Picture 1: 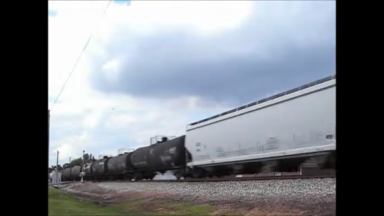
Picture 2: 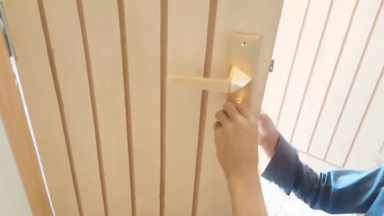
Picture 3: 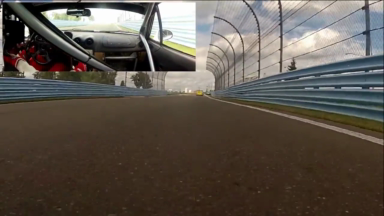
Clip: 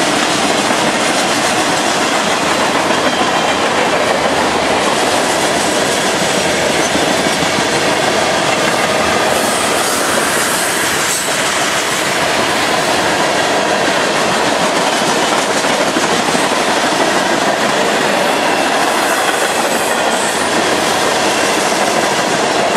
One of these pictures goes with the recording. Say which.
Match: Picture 1